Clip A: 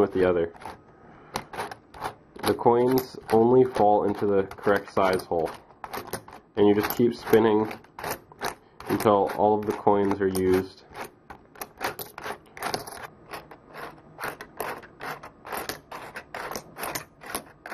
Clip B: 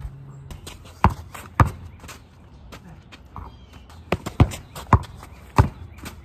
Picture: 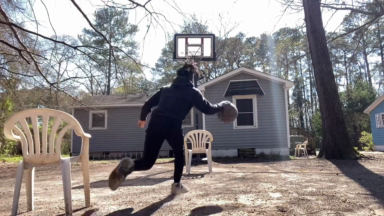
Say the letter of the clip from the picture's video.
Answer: B